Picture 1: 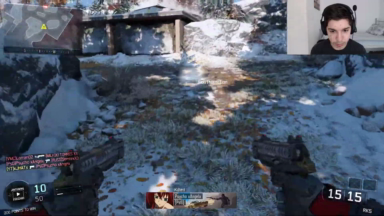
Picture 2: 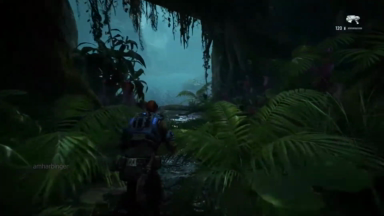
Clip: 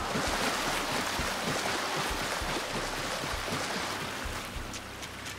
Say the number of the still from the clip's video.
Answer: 2